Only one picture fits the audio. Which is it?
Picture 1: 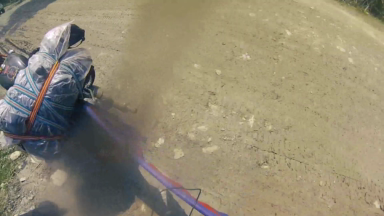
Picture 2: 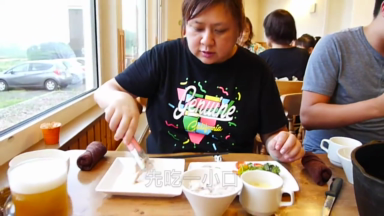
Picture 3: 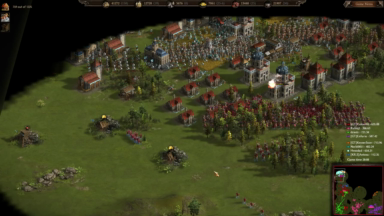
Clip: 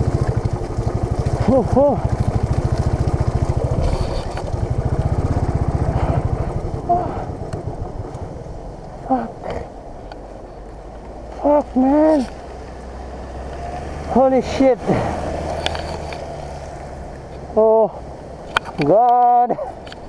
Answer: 1